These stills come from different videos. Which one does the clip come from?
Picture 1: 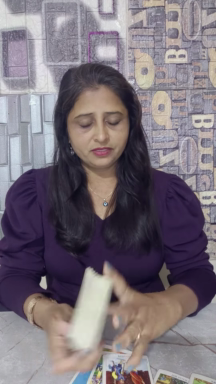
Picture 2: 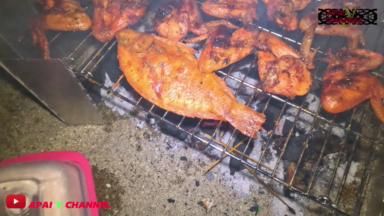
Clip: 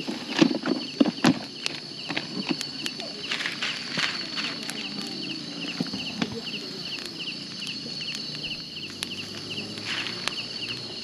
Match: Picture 2